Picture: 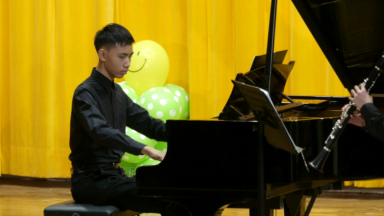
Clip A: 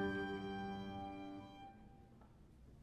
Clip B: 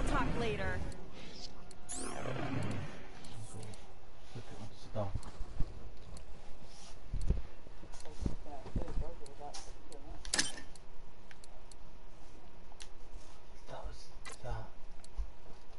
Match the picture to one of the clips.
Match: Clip A